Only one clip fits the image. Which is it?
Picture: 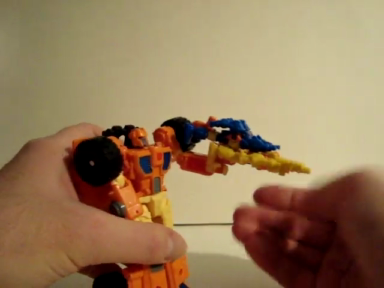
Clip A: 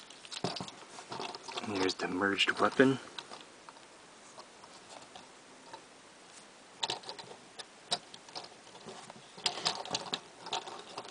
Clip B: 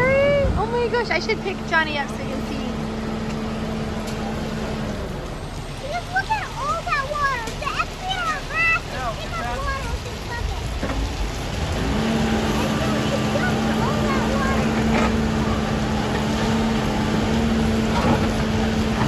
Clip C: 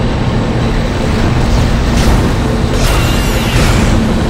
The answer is A